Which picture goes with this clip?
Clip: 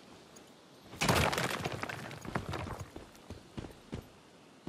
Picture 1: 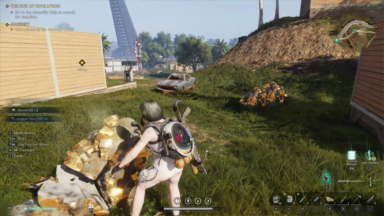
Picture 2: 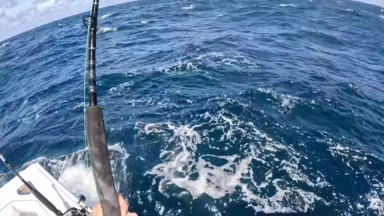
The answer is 1